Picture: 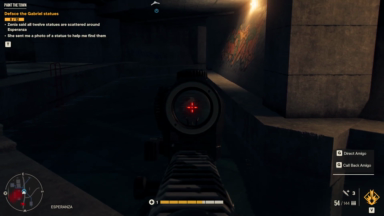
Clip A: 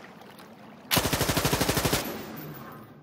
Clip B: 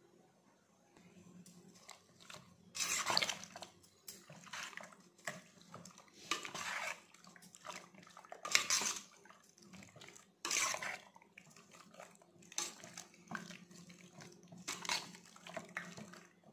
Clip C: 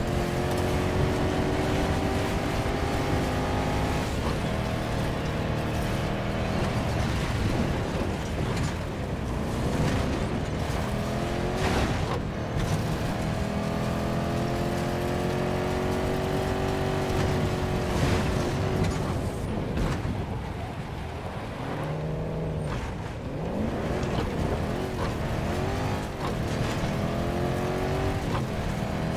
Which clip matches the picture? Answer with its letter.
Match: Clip A